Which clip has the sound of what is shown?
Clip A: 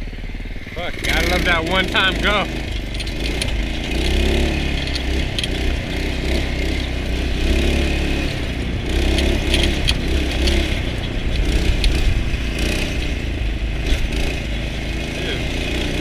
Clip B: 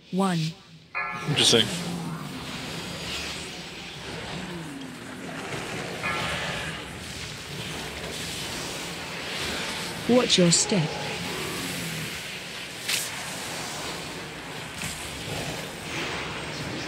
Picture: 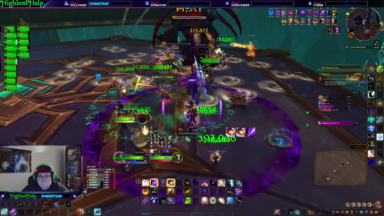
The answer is B